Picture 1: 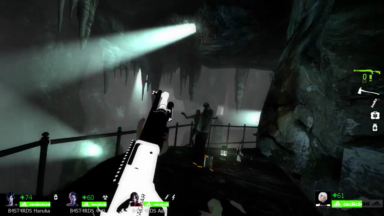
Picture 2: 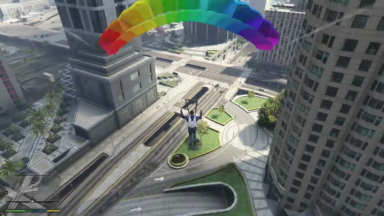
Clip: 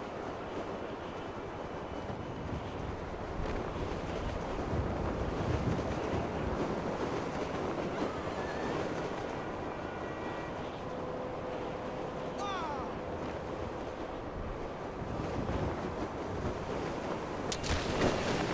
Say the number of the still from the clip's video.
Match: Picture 2